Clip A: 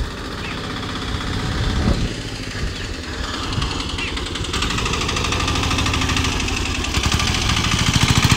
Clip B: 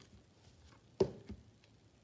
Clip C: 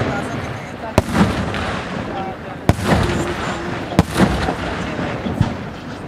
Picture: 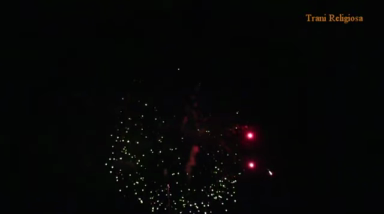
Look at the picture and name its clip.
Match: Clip C